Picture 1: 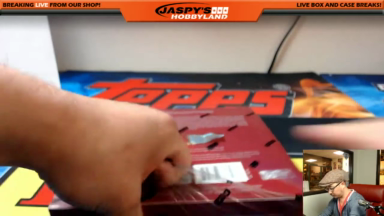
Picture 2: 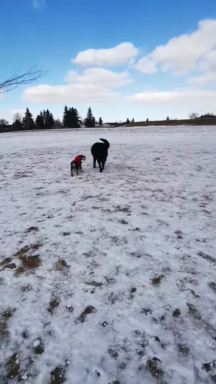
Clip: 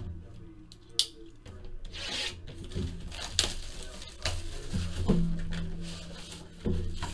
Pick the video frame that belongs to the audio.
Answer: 1